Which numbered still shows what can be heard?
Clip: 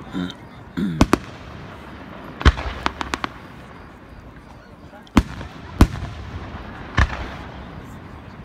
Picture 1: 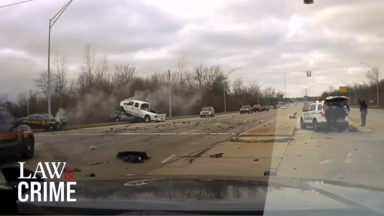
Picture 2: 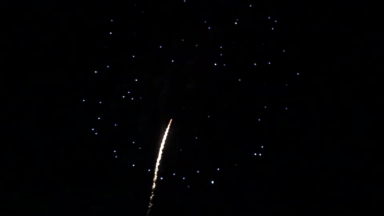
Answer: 2